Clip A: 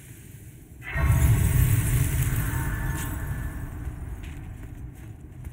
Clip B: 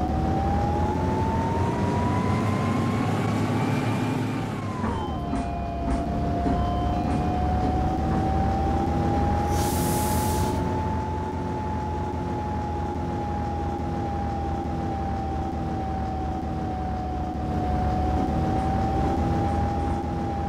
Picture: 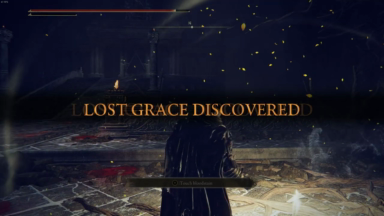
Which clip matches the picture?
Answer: A